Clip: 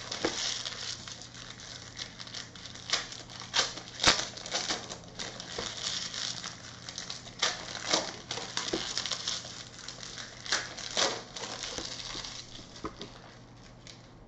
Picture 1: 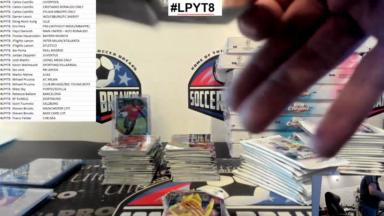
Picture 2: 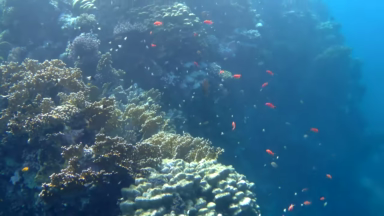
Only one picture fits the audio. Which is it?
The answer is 1